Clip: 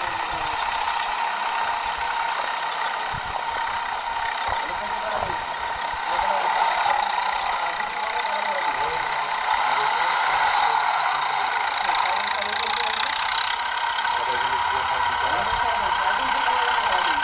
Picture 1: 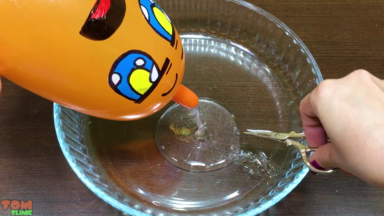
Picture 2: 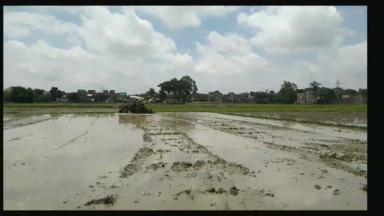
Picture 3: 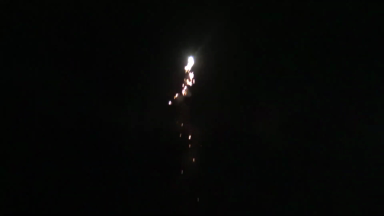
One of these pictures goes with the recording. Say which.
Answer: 2